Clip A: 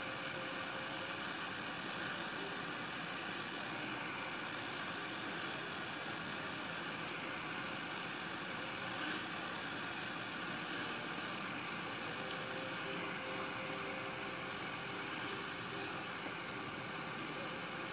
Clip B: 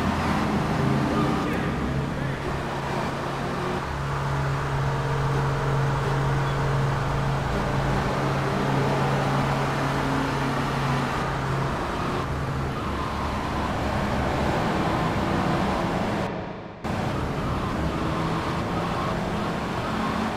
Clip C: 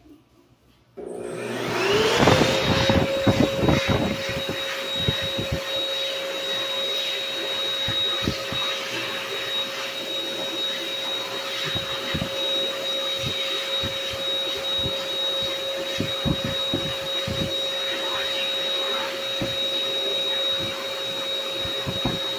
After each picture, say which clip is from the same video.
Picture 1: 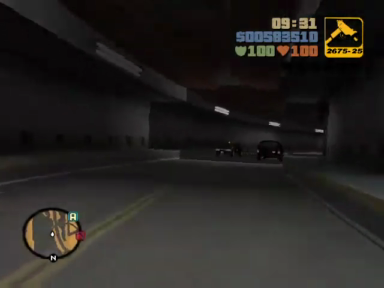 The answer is B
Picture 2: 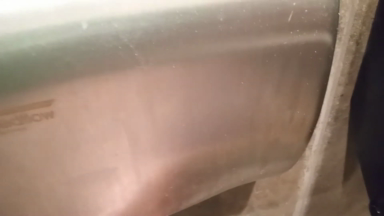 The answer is C